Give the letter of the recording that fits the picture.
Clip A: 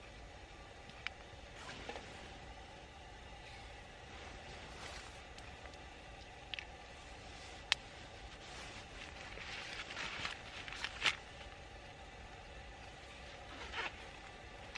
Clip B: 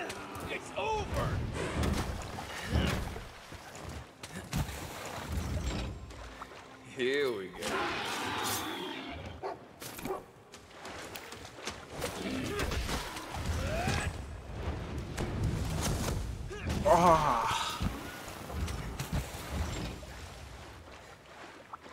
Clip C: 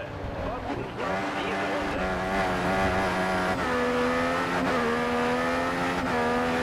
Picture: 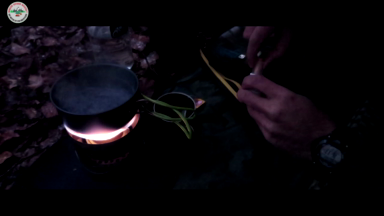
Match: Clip A